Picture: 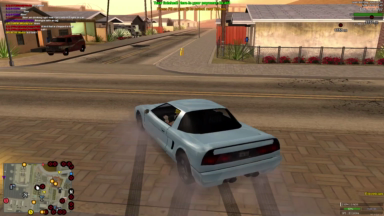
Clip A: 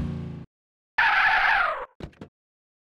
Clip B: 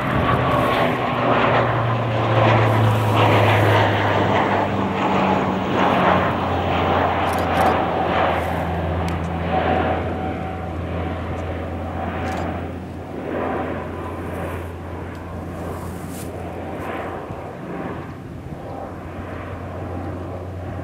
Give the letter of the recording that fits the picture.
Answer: A